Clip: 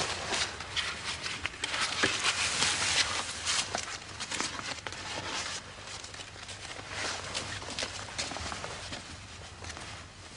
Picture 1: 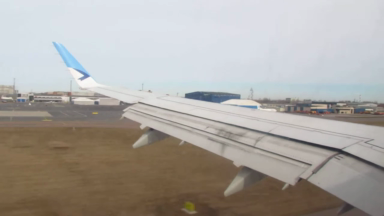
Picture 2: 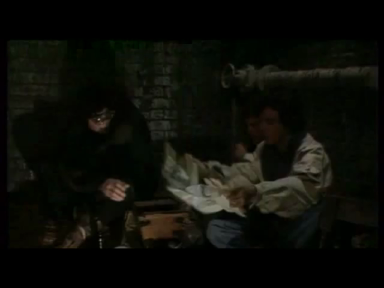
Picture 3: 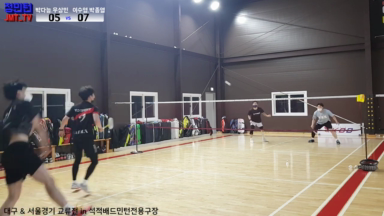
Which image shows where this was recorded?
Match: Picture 2